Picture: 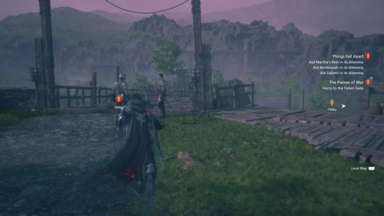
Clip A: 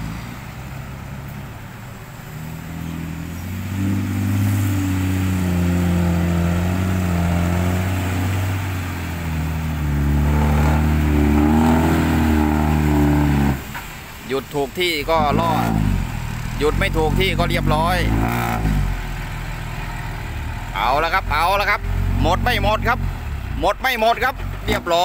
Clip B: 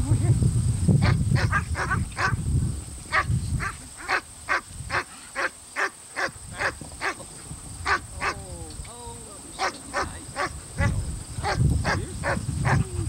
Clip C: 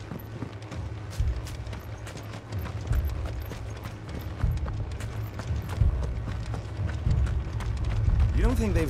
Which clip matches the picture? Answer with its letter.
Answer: C